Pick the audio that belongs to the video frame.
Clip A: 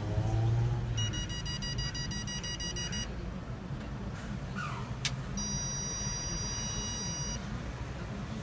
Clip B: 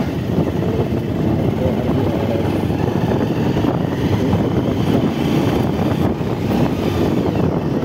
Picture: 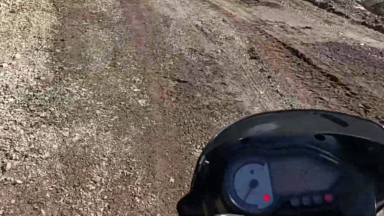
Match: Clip B